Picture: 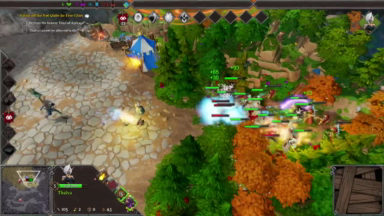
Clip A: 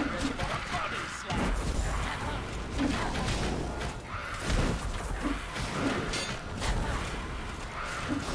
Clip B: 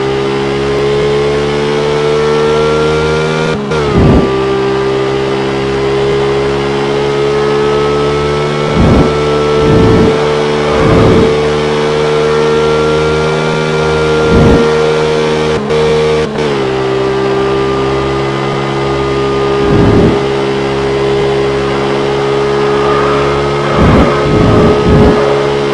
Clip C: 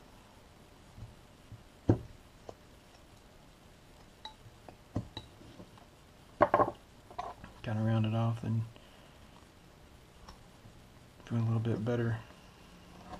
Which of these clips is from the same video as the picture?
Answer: A